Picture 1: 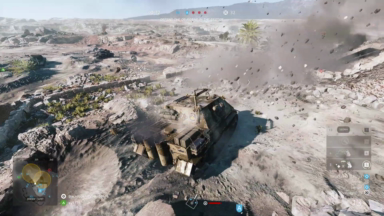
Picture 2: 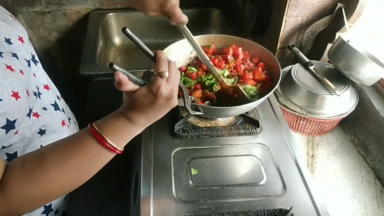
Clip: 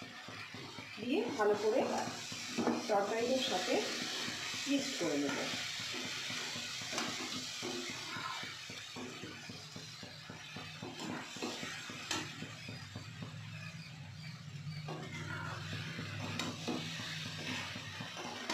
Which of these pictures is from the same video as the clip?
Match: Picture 2